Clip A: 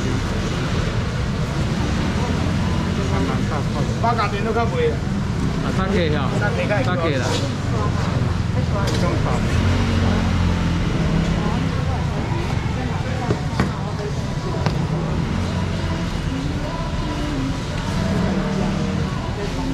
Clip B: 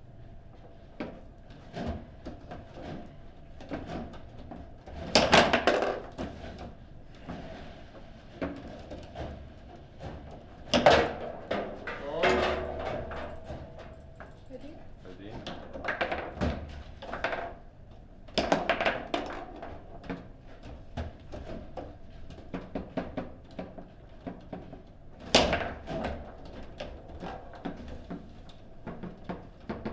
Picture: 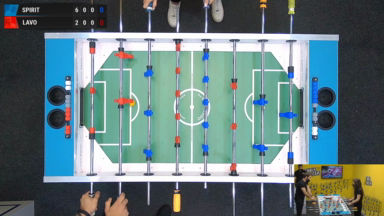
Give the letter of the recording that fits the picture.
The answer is B